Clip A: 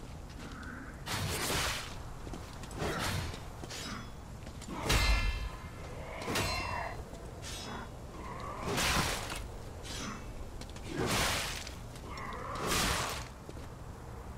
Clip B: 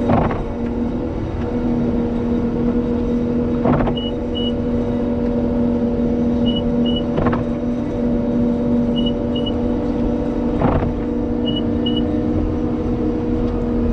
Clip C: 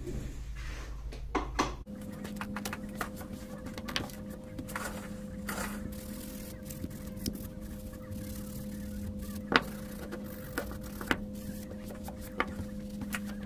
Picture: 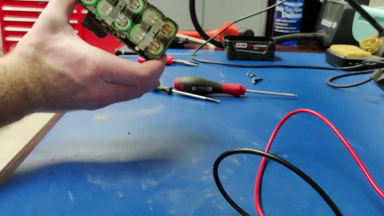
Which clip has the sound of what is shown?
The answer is C